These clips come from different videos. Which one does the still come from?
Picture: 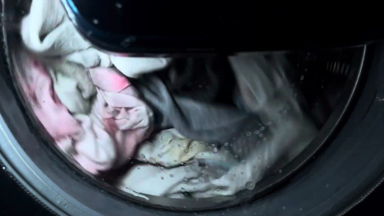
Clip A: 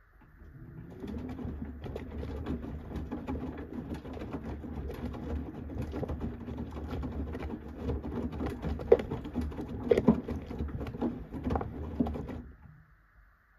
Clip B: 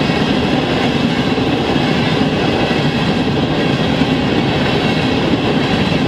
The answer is A